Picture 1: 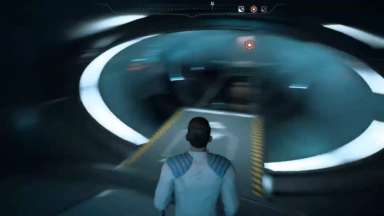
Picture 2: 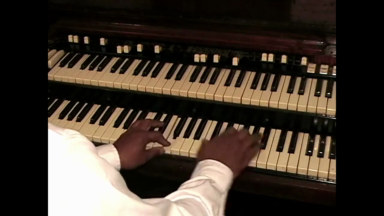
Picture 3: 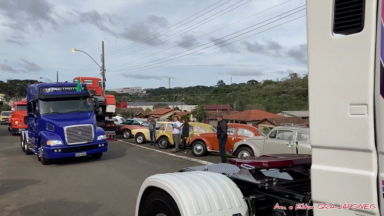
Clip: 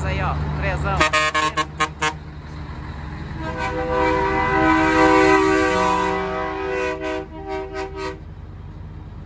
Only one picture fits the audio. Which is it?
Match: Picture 3